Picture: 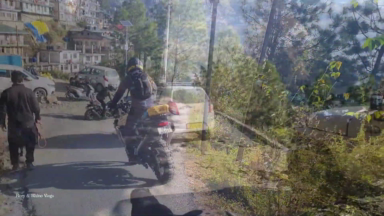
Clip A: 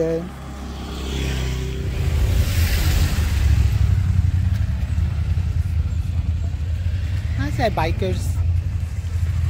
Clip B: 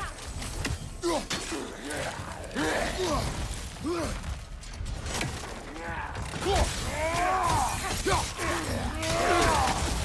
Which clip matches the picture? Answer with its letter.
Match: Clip A